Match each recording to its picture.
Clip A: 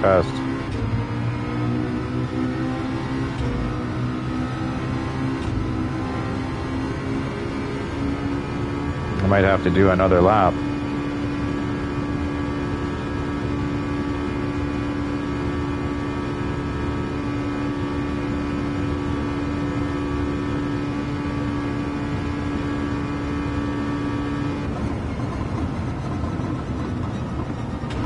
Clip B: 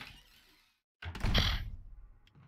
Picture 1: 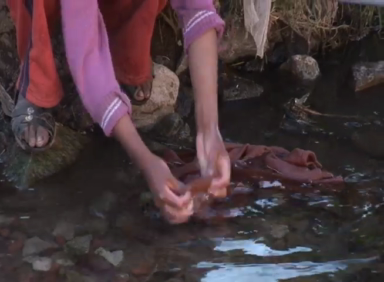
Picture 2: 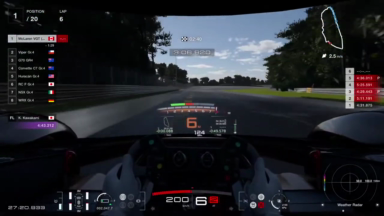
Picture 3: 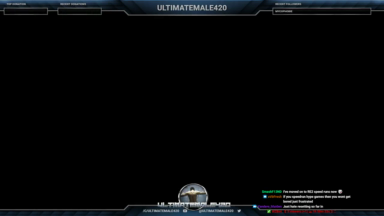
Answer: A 2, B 3